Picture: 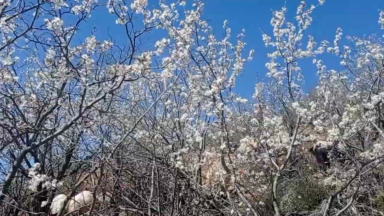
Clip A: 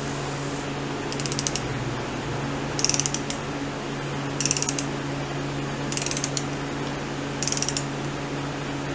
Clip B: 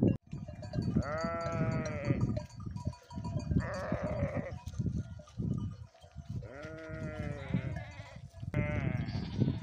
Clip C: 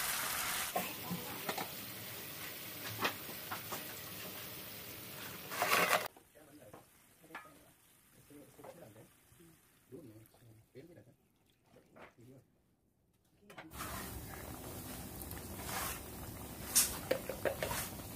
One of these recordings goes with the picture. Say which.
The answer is B